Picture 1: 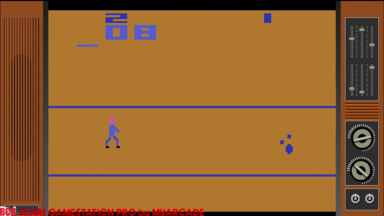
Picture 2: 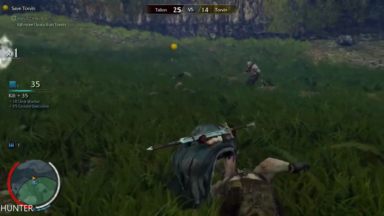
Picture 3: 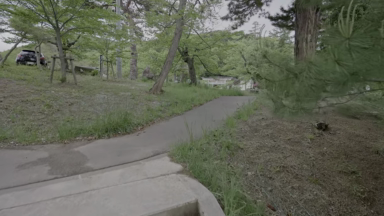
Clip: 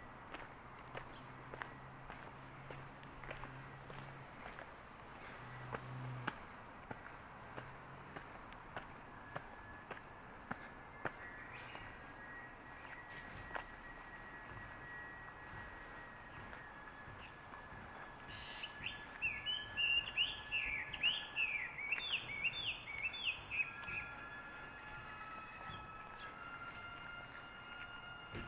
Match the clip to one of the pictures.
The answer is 3